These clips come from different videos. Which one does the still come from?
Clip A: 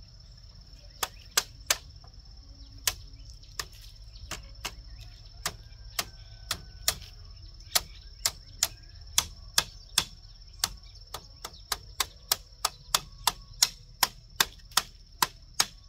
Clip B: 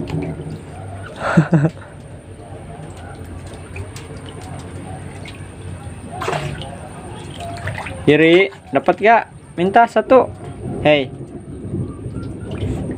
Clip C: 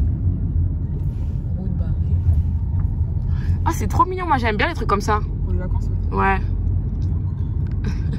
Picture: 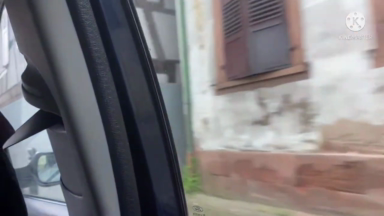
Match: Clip C